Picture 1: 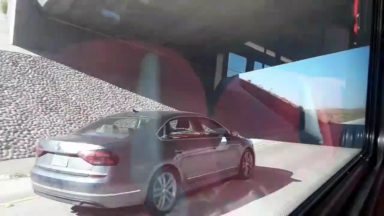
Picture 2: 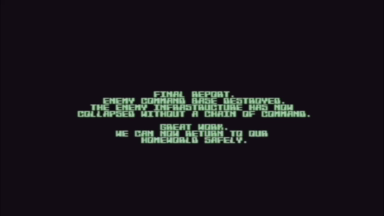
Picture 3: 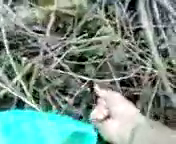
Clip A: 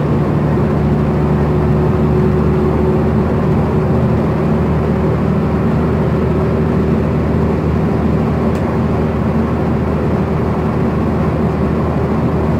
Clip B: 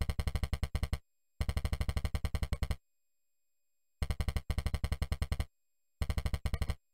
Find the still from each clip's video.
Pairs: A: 1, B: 2